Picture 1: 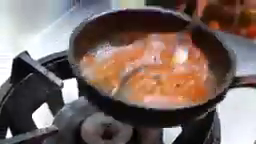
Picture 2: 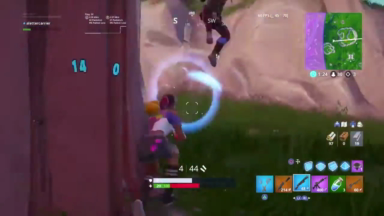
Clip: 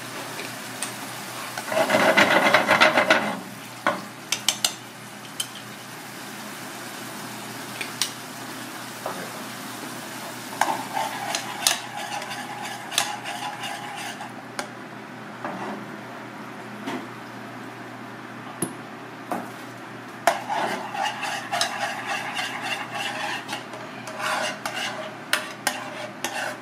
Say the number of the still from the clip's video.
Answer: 1